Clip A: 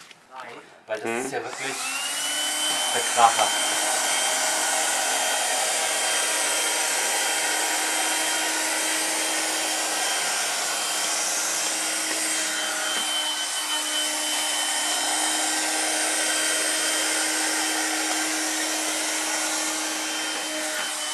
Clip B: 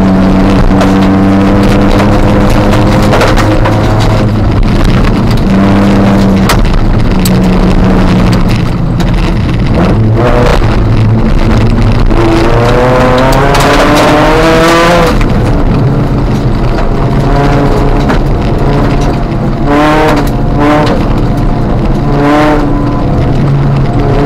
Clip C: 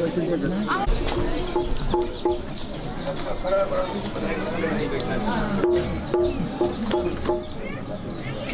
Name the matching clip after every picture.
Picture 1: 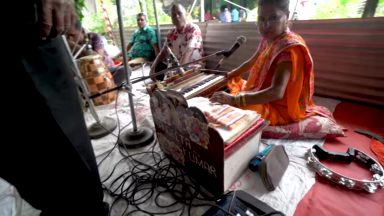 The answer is C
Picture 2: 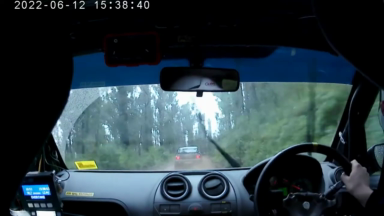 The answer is B